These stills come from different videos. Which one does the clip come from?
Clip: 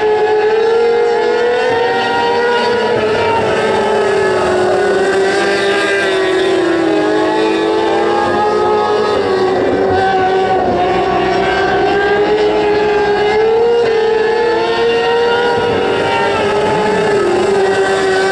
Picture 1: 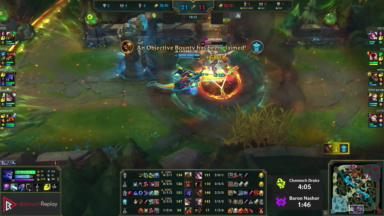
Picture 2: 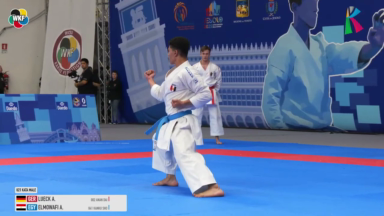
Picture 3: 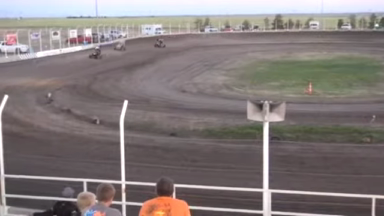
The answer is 3